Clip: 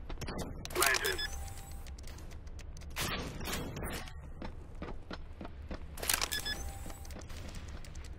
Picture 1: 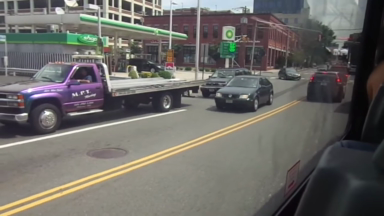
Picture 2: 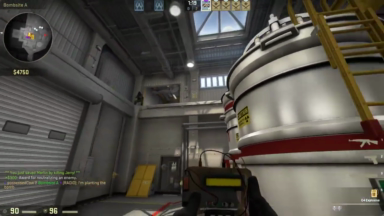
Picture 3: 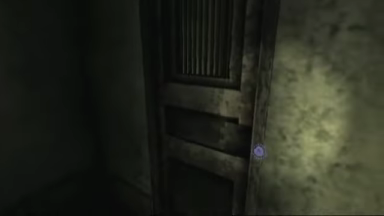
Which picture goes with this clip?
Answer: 2